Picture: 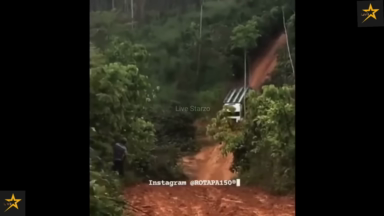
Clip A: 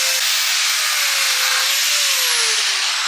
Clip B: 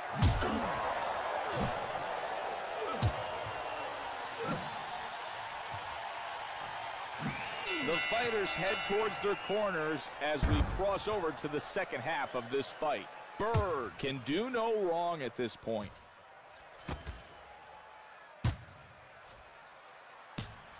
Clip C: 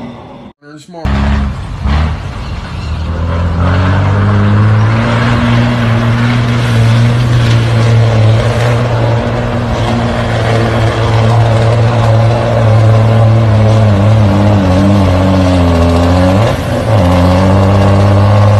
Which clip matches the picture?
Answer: C